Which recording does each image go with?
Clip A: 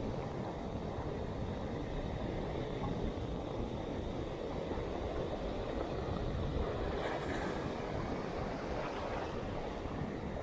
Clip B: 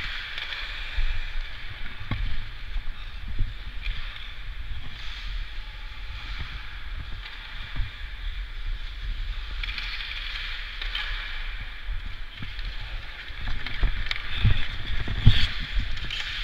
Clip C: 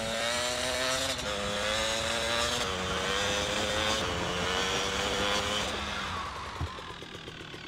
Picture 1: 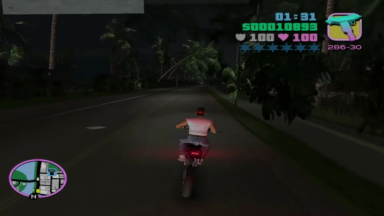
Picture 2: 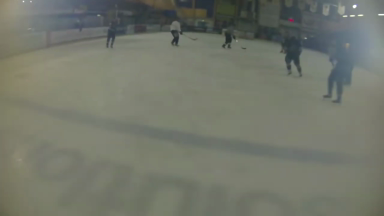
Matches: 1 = C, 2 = B